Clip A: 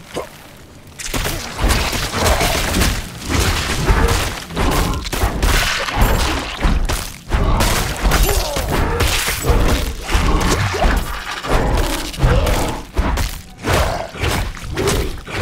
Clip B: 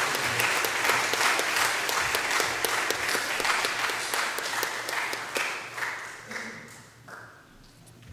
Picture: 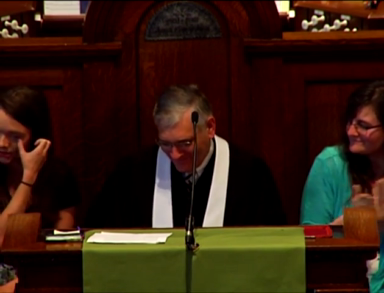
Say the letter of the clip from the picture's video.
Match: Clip B